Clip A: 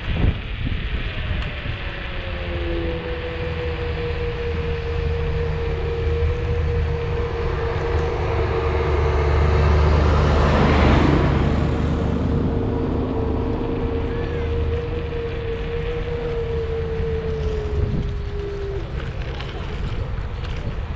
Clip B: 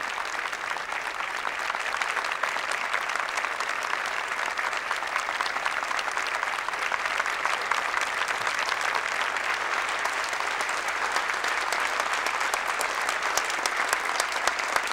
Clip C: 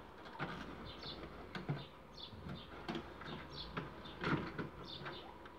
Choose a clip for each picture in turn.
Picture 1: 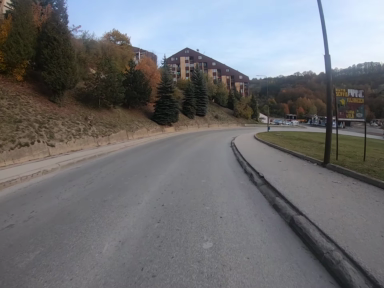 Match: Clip A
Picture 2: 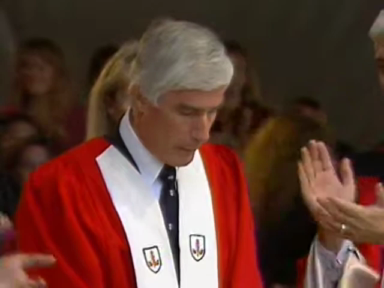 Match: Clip B